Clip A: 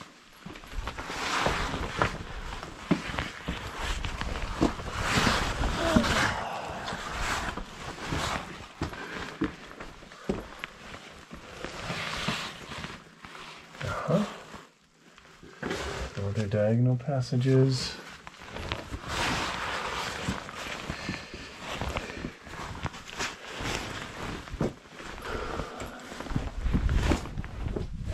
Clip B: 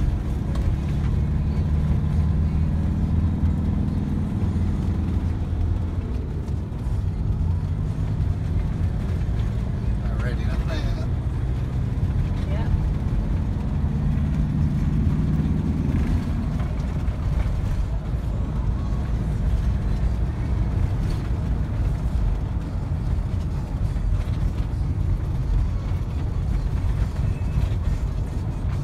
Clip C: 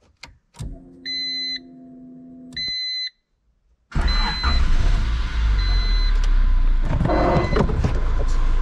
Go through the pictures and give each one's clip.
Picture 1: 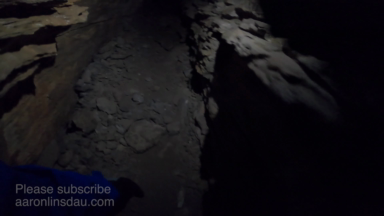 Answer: A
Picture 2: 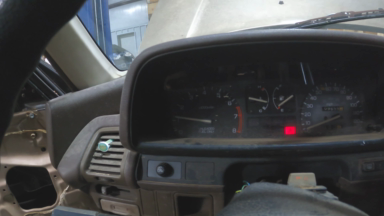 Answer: C